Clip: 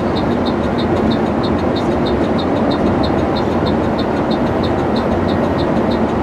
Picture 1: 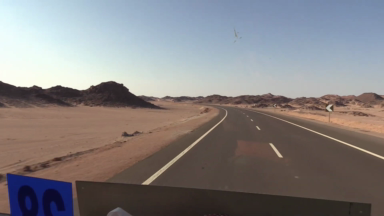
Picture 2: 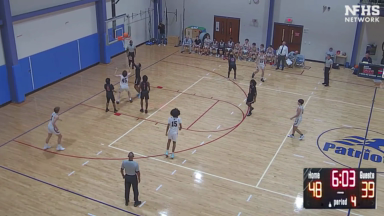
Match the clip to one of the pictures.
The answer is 1